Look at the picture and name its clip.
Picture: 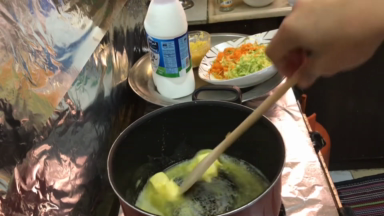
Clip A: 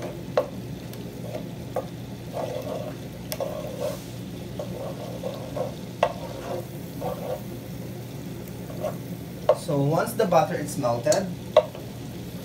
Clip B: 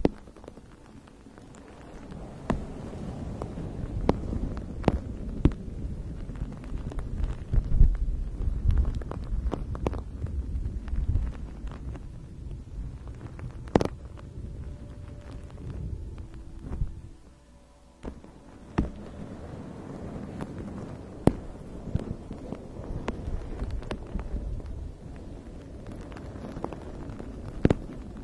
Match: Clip A